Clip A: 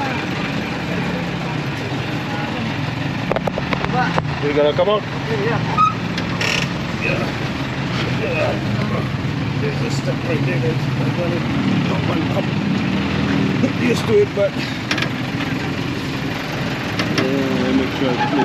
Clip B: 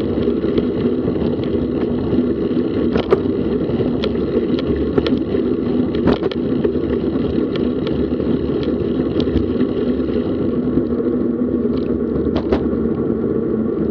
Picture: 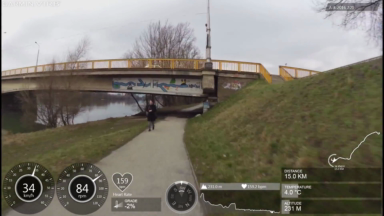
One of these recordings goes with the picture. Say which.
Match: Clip B